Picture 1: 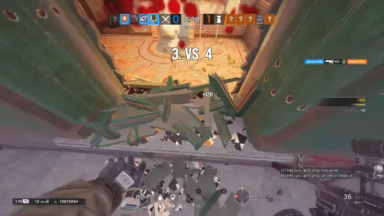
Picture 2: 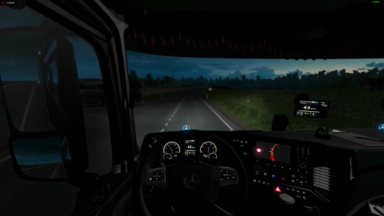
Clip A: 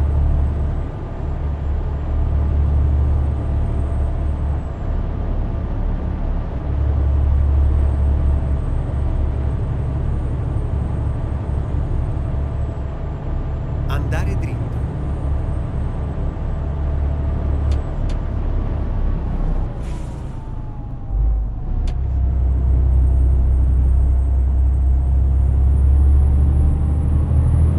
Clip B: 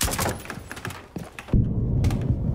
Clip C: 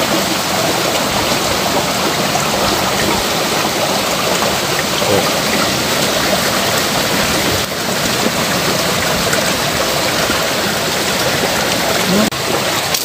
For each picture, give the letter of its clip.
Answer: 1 B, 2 A